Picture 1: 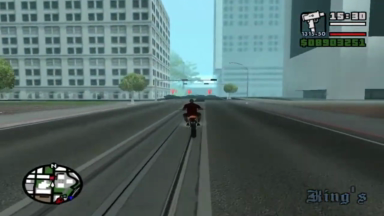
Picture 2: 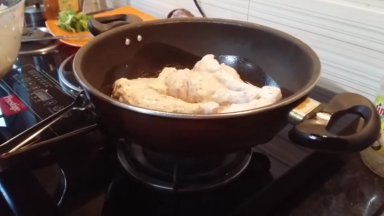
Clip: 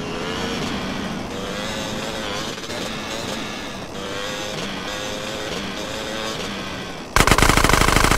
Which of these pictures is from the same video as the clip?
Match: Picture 1